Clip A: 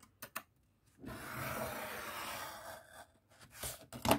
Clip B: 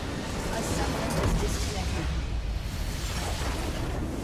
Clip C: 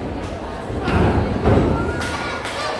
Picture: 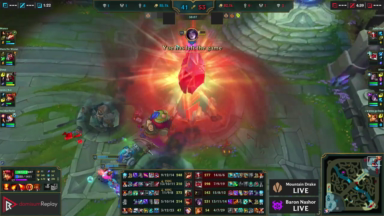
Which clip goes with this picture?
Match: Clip B